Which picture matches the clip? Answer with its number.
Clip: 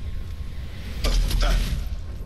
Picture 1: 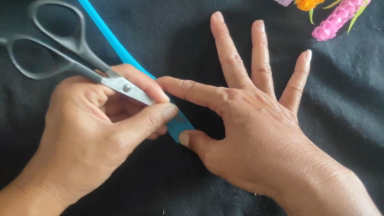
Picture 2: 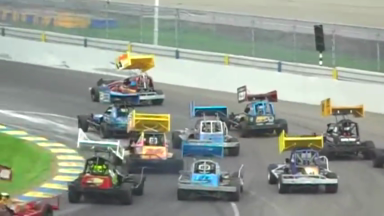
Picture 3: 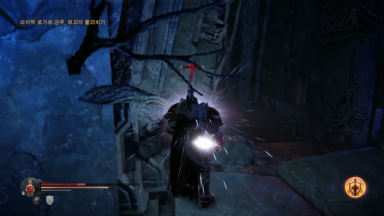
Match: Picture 3